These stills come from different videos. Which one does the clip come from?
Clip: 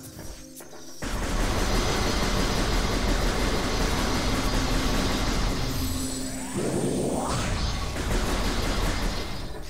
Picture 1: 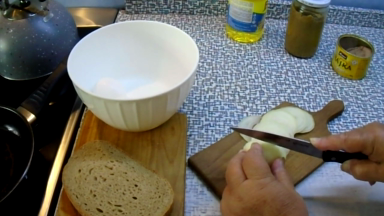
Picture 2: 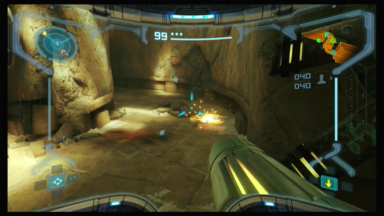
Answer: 2